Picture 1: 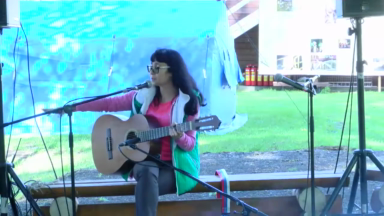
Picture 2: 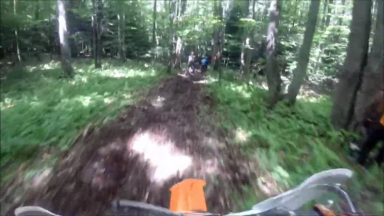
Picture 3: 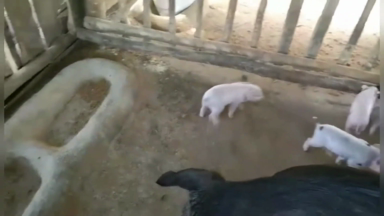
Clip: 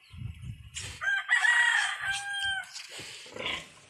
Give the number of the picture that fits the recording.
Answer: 3